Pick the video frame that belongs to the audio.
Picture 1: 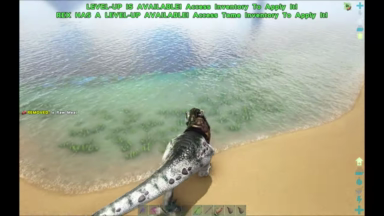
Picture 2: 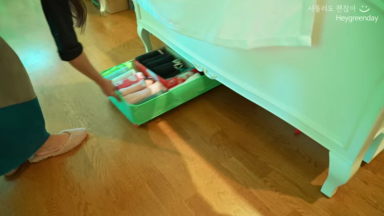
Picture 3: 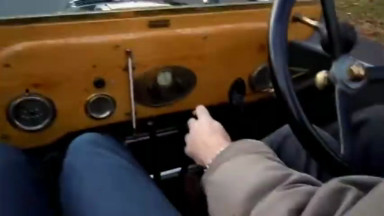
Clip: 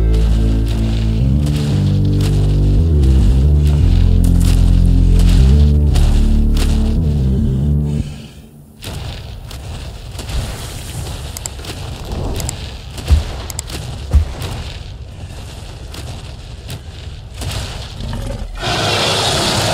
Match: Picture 1